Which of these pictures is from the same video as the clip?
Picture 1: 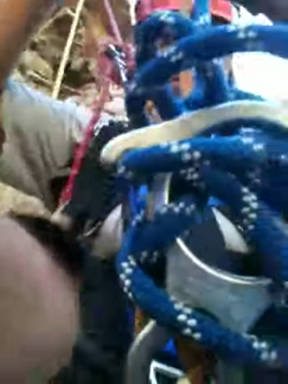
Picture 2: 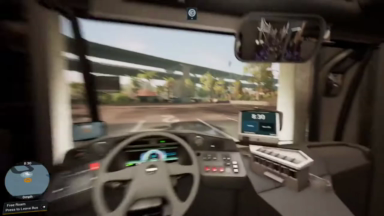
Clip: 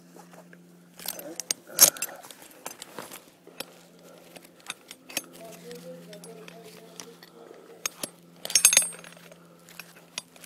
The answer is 1